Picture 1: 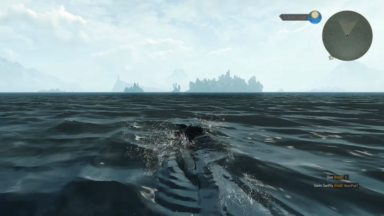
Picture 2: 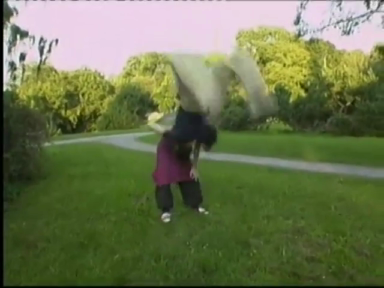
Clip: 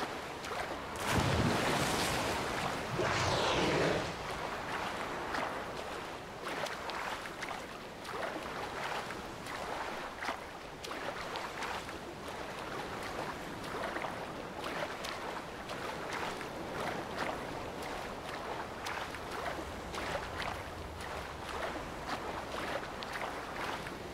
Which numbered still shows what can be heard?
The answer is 1